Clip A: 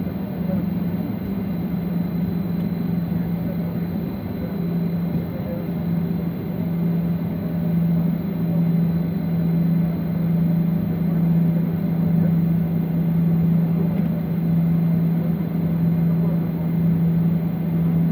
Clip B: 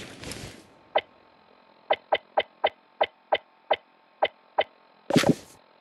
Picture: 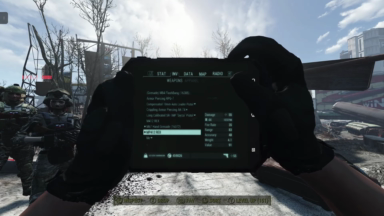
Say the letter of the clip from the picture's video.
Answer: B